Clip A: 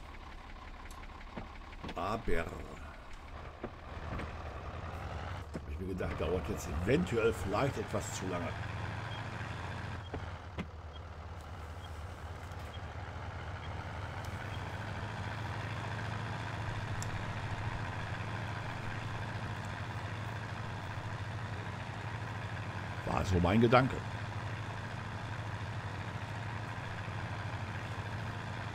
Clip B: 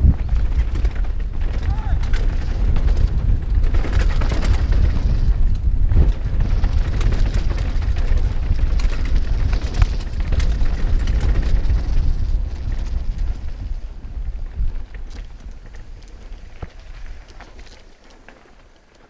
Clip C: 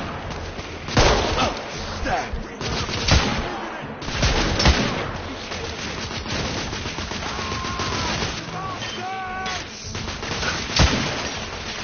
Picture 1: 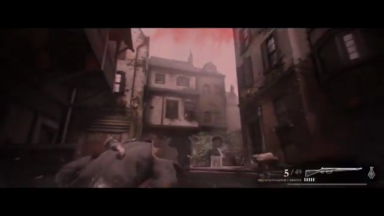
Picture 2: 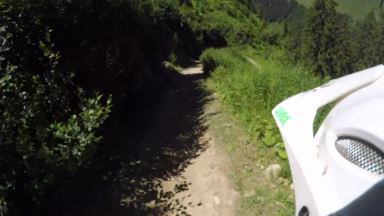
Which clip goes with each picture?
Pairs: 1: C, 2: B